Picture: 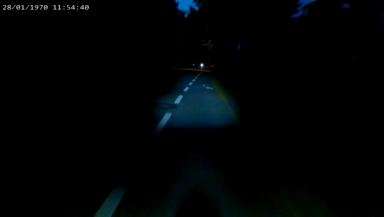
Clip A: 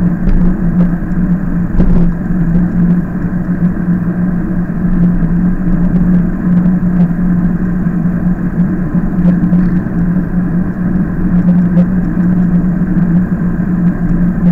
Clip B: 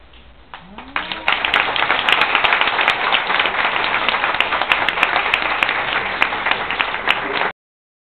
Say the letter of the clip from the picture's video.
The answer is A